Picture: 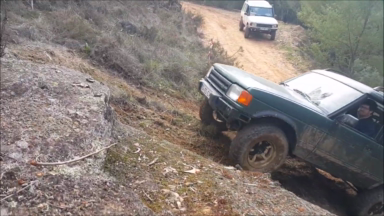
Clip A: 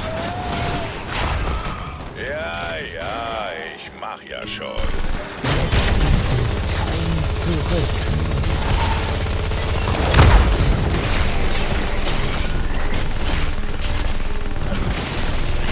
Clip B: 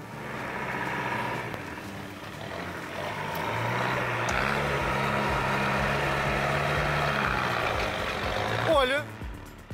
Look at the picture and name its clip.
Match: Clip B